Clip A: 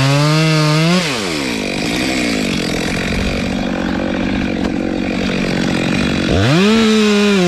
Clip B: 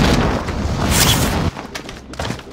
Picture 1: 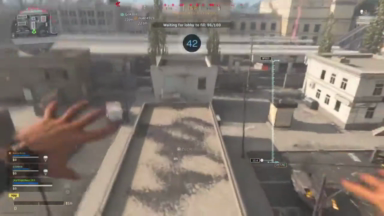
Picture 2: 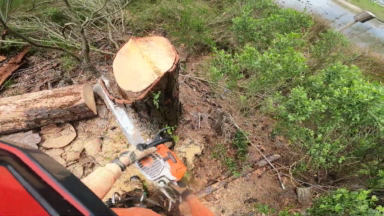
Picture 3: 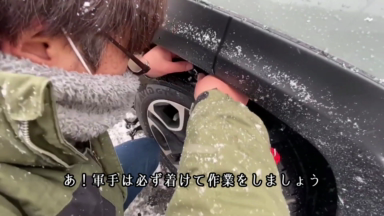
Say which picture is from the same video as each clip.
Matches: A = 2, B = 1